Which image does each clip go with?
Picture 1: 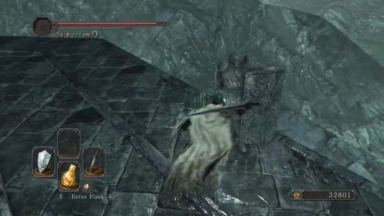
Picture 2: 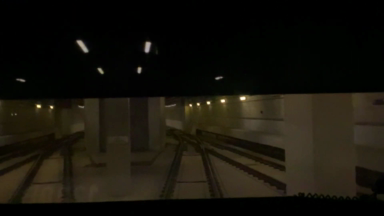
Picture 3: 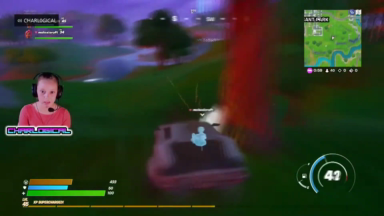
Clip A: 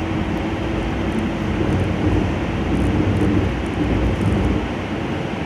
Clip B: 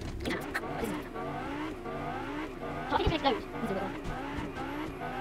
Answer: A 2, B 3